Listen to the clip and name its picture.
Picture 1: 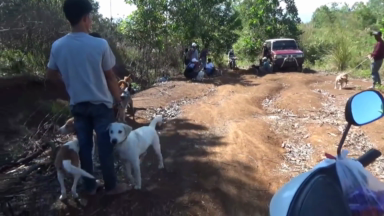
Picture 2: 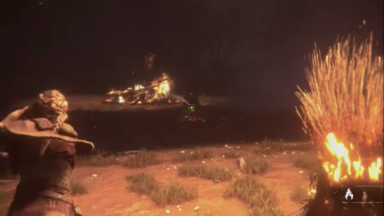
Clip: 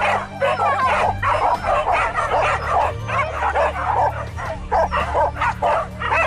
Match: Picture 1